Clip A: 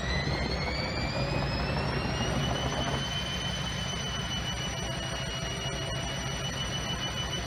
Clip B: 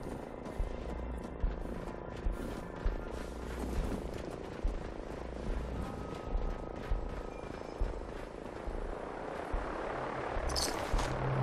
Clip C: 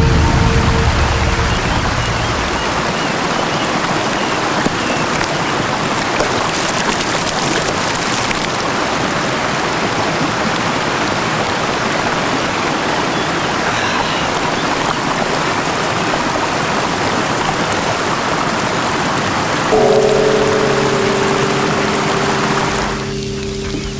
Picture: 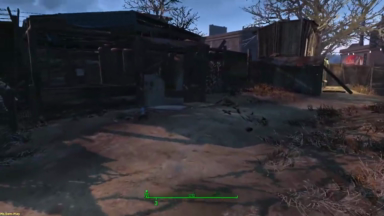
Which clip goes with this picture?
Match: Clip B